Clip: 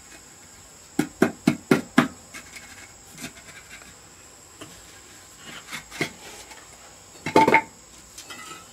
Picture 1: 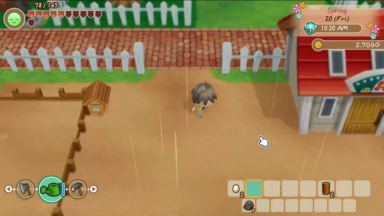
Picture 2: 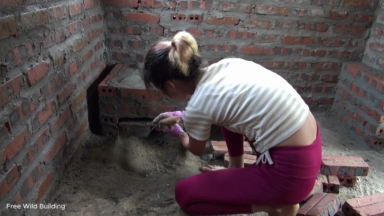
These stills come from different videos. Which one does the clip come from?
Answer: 2